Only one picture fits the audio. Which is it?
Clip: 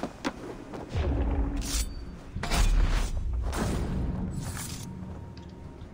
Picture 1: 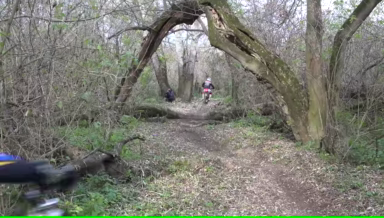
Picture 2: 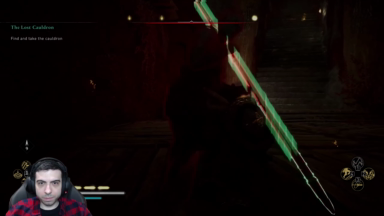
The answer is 2